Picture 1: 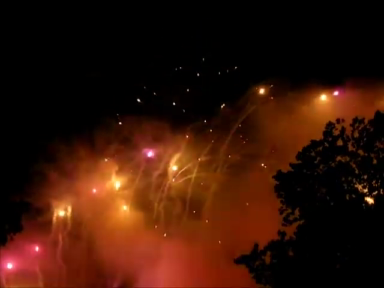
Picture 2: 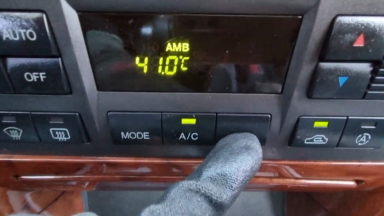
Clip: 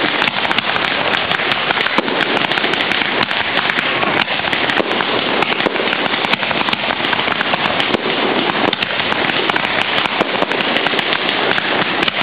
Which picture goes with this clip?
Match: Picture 1